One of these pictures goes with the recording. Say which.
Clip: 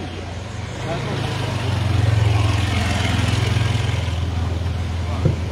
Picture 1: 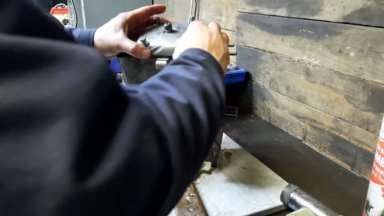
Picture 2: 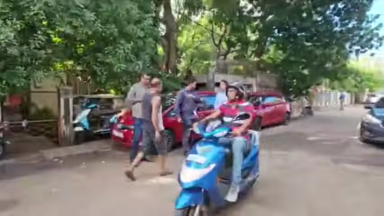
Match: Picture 2